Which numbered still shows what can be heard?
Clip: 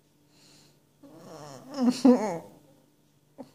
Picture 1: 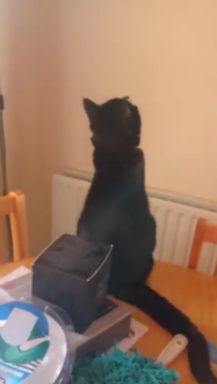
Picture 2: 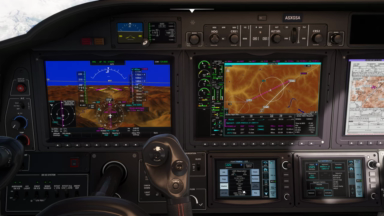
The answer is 1